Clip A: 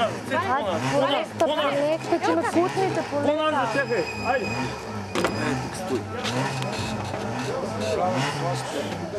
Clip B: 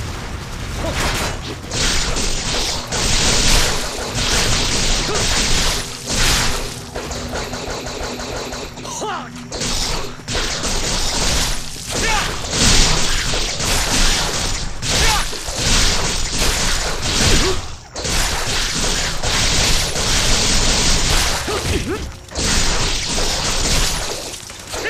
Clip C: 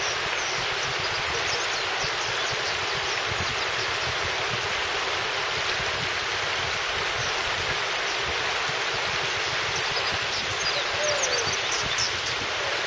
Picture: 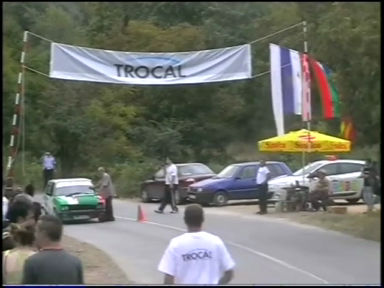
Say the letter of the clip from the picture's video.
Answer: A